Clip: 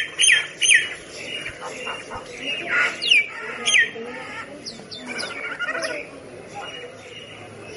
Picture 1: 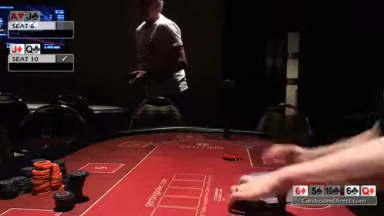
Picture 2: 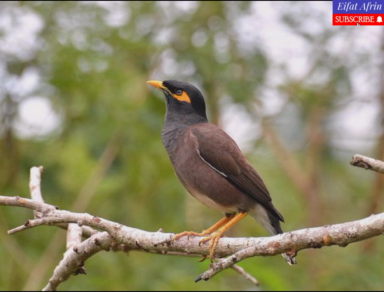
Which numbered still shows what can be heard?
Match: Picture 2